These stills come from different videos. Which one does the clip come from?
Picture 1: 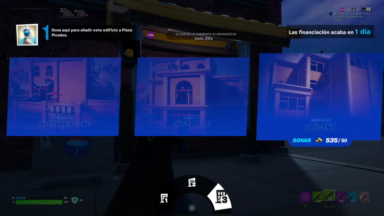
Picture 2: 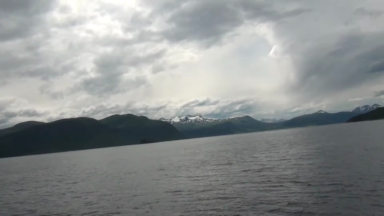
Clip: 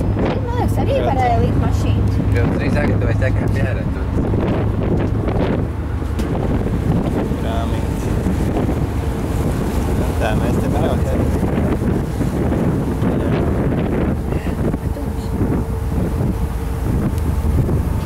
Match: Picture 2